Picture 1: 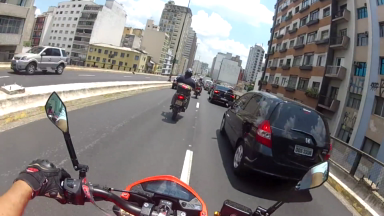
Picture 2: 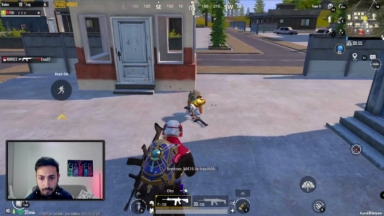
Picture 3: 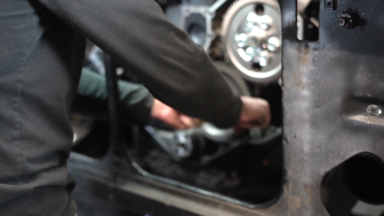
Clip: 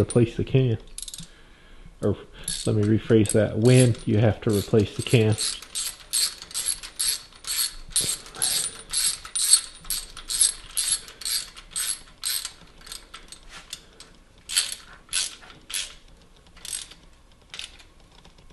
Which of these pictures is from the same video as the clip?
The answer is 3